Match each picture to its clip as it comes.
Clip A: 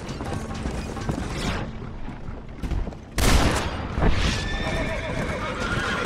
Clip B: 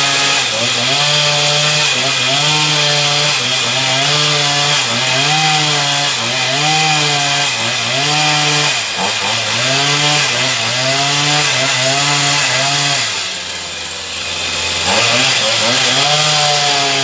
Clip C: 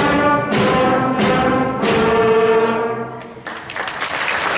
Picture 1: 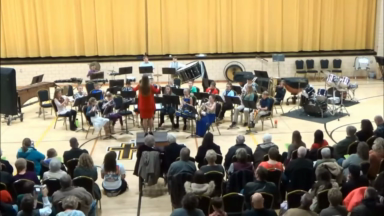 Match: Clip C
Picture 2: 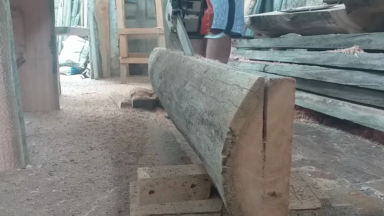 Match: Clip B